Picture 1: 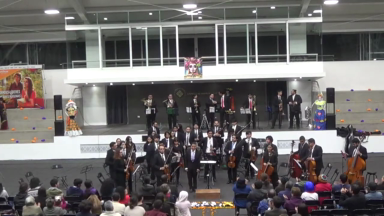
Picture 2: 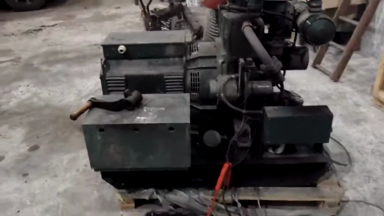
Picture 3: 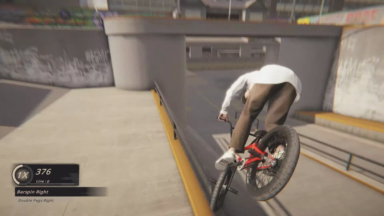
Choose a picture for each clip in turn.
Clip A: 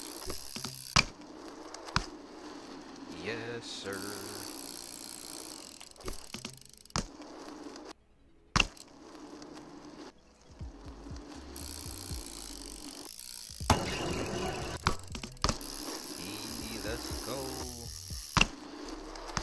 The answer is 3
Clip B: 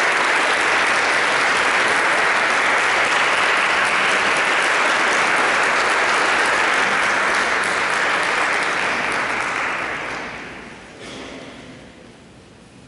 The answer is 1